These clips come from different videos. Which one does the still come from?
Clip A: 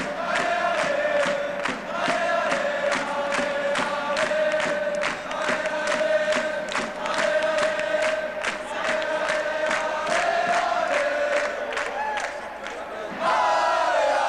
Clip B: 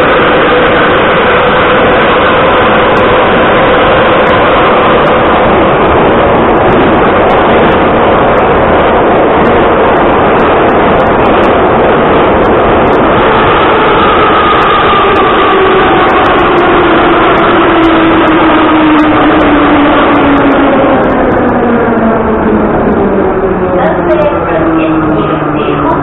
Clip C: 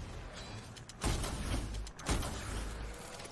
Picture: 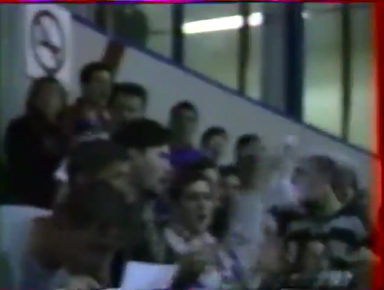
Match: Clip A